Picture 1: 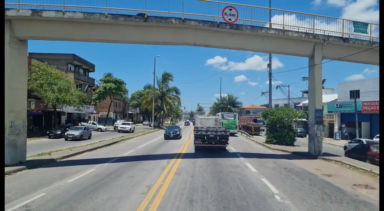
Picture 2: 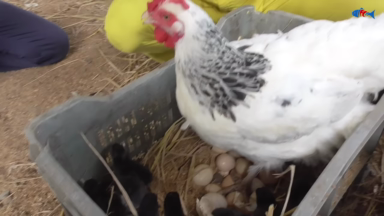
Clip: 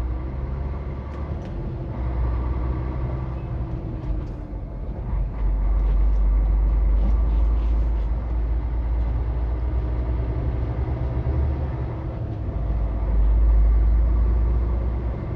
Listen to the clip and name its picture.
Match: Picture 1